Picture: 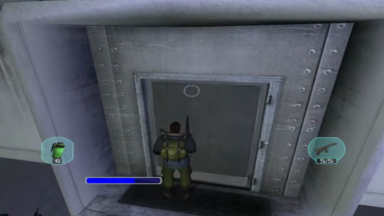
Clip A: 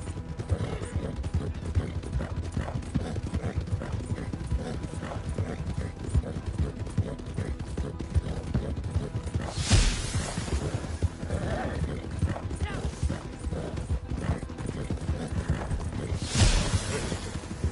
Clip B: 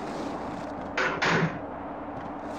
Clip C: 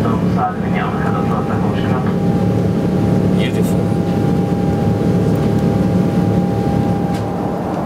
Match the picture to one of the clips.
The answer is B